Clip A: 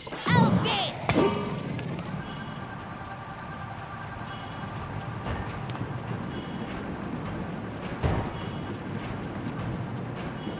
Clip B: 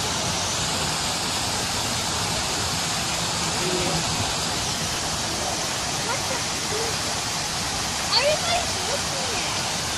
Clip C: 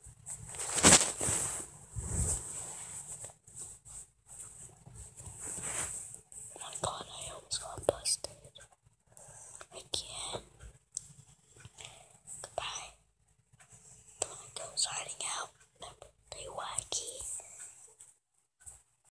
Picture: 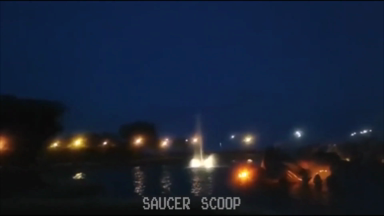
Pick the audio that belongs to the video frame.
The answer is B